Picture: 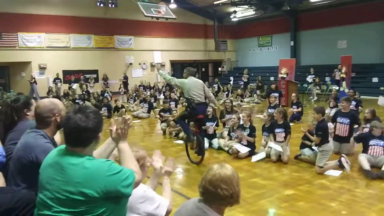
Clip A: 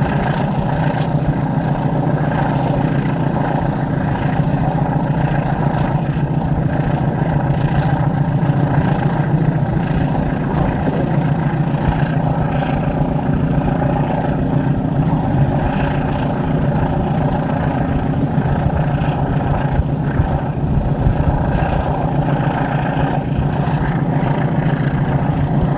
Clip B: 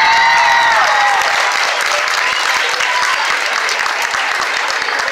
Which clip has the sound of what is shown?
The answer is B